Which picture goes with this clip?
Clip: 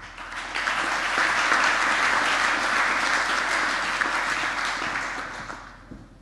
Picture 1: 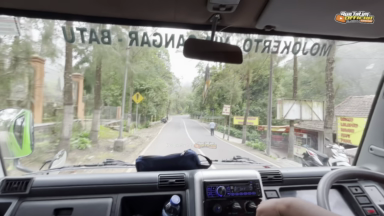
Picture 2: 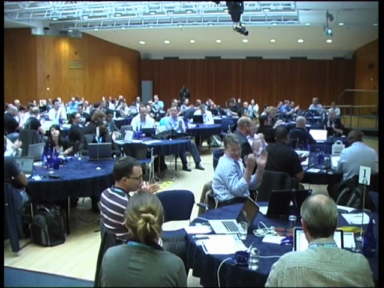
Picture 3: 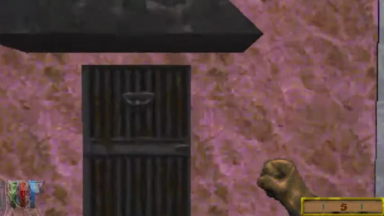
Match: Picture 2